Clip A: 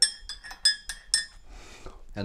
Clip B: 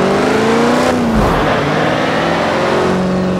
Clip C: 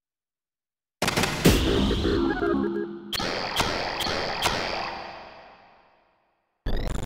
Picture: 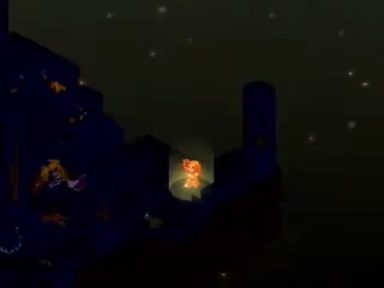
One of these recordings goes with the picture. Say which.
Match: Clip C